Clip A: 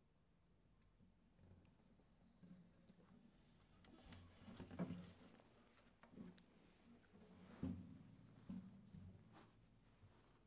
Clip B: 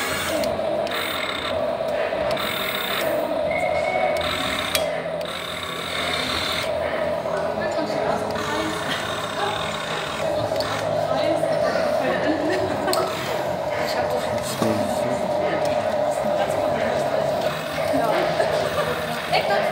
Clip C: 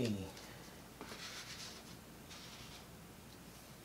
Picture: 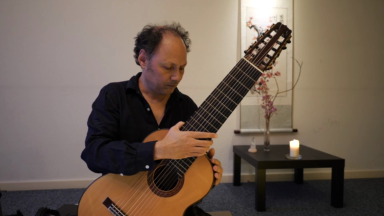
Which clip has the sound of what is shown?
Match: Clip A